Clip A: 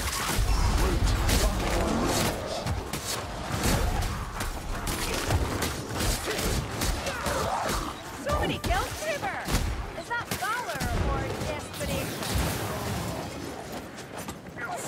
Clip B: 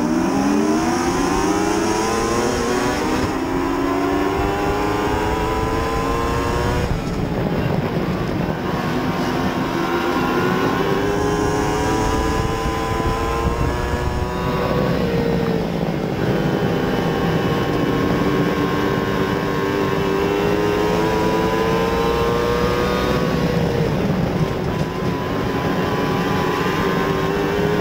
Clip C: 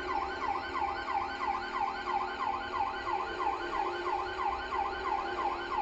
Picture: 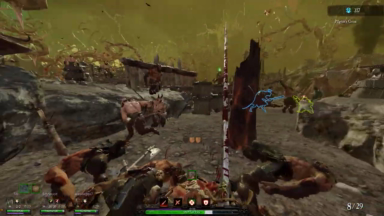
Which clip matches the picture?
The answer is A